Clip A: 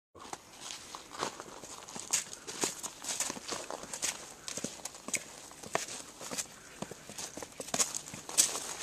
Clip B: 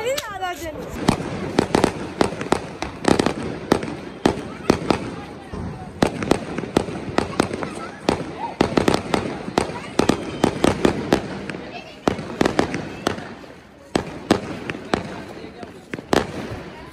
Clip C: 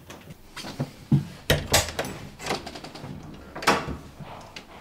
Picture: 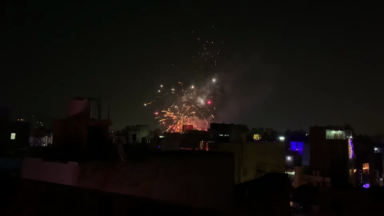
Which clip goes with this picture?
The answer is B